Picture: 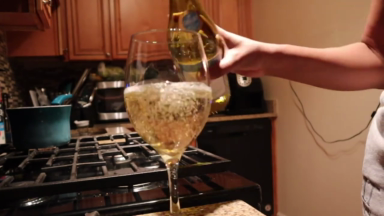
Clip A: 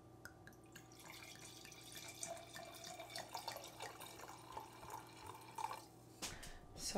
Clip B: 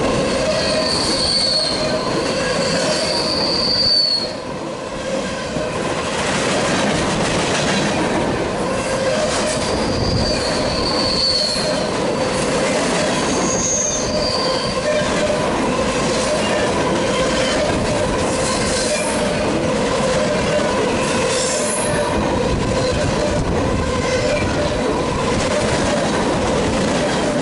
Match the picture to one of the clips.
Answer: A